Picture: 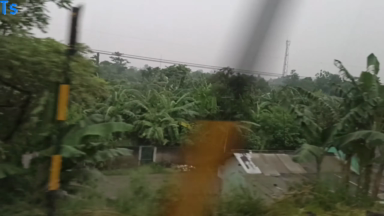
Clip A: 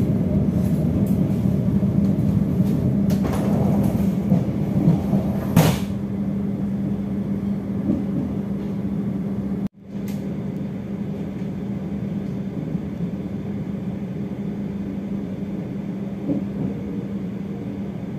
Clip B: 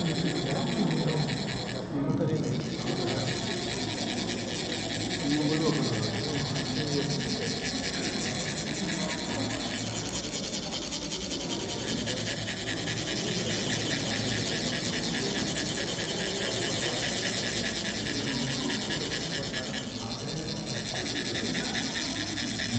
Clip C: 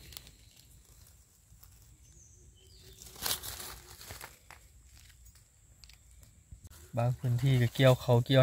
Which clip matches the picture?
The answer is A